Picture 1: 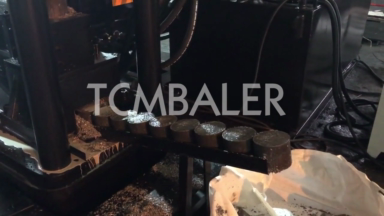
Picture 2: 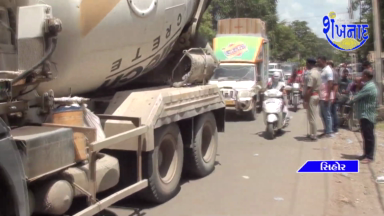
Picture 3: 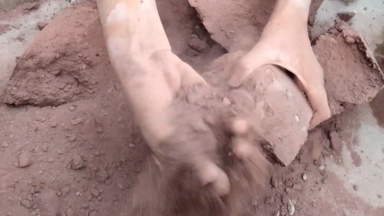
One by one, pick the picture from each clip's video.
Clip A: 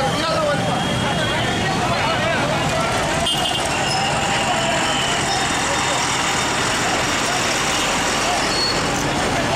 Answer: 2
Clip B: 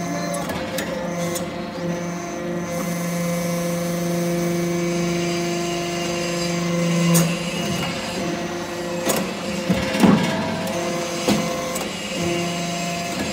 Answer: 1